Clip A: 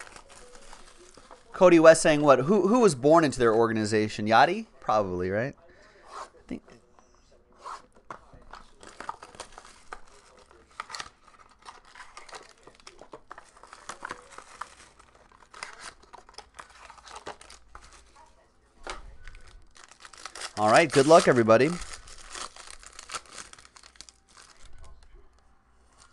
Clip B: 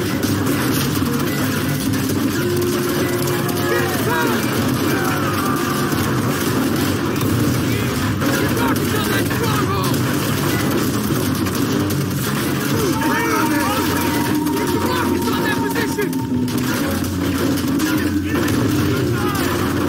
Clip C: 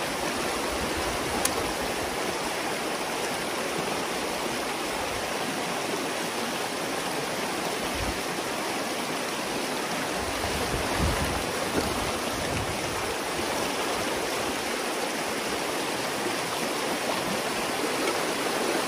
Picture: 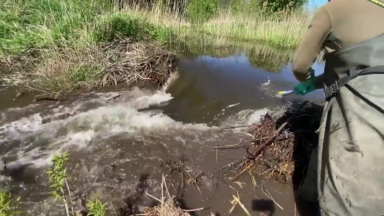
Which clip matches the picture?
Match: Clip C